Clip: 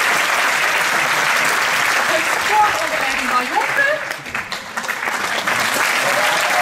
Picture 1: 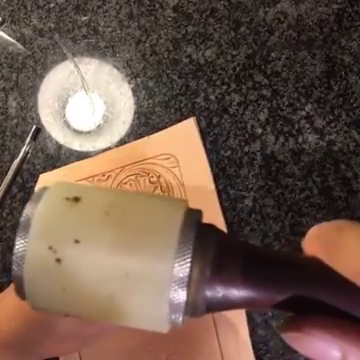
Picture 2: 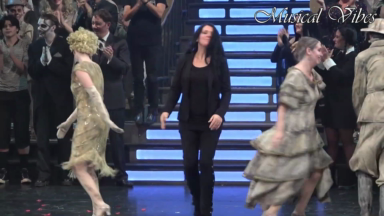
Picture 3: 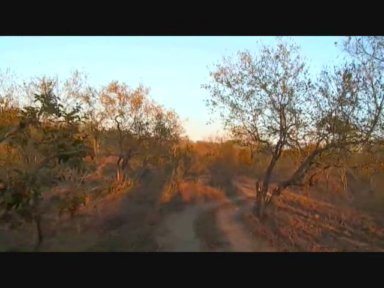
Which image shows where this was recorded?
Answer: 2